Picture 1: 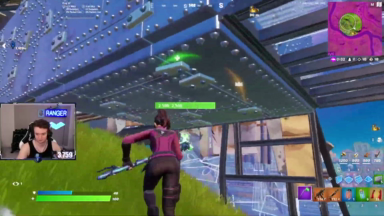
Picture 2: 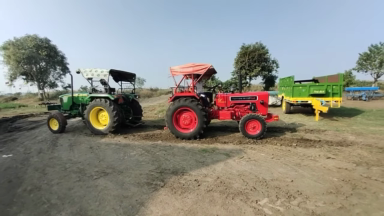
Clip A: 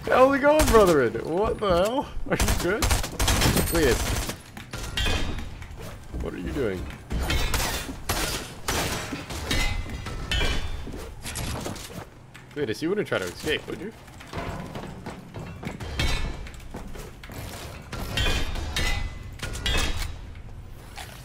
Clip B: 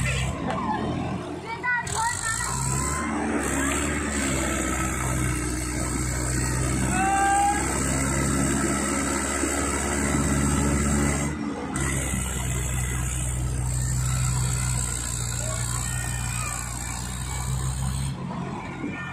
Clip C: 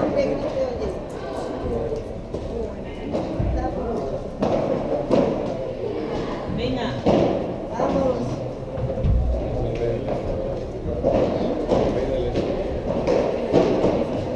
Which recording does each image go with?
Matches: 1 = A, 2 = B